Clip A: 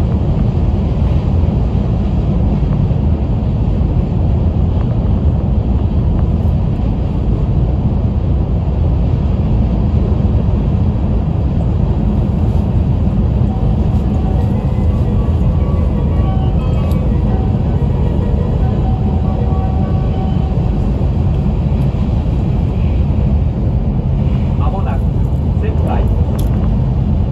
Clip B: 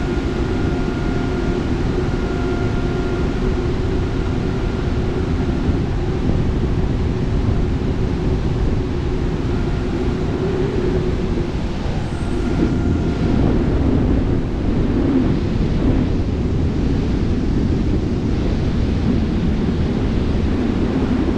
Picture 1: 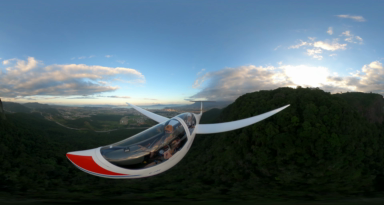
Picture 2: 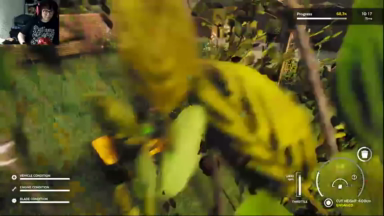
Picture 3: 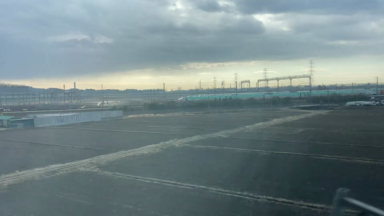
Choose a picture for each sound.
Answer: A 3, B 1